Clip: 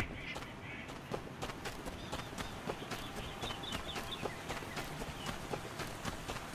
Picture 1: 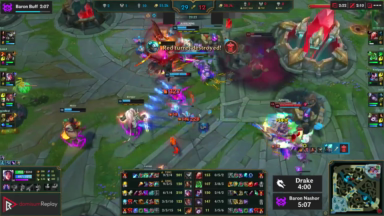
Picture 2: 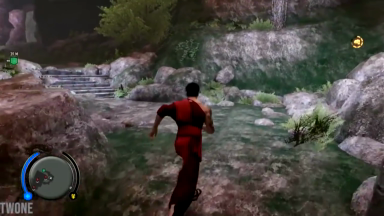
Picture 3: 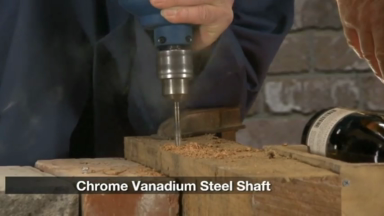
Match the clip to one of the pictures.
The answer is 2